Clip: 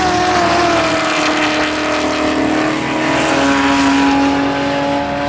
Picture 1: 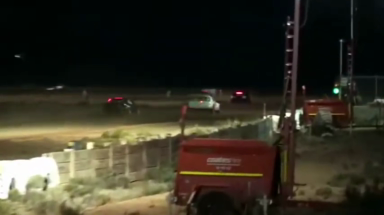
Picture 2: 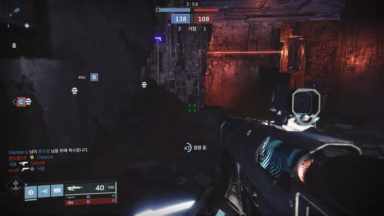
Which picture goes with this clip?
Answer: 1